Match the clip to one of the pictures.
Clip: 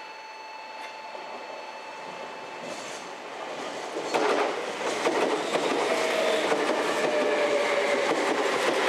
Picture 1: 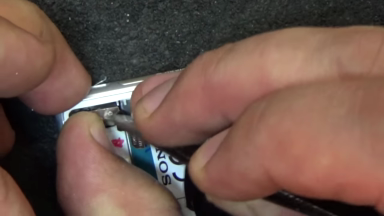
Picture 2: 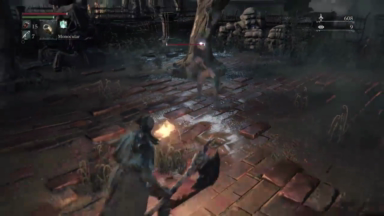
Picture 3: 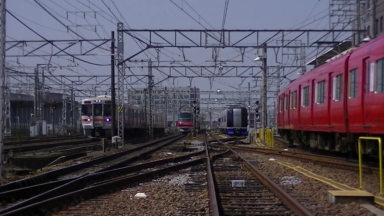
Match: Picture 3